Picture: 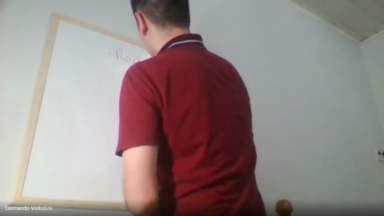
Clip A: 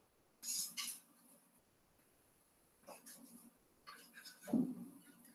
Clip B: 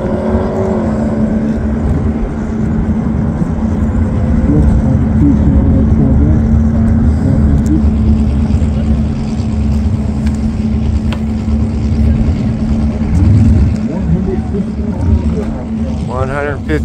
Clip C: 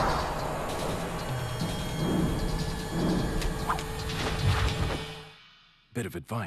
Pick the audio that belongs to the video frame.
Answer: A